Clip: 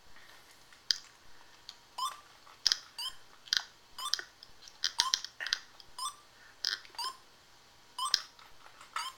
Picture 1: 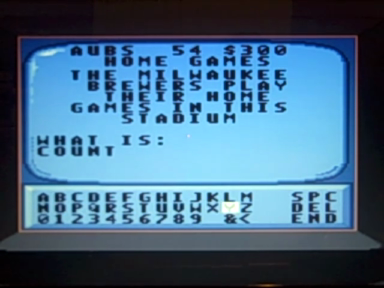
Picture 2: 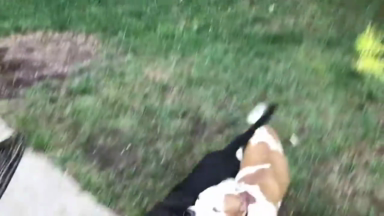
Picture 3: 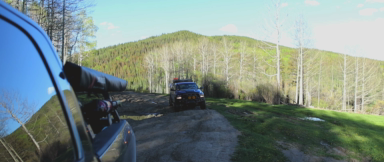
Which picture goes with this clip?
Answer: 1